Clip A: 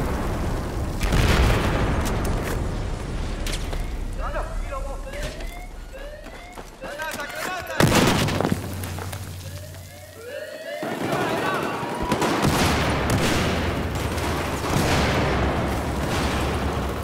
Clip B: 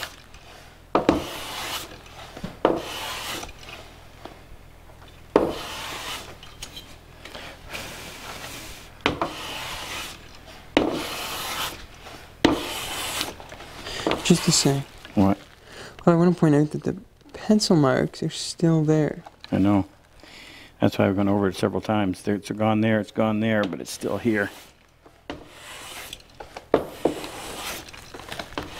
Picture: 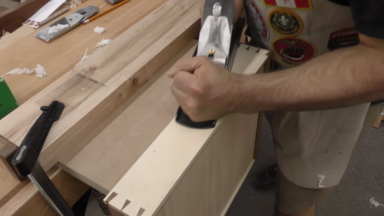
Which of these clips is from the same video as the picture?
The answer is B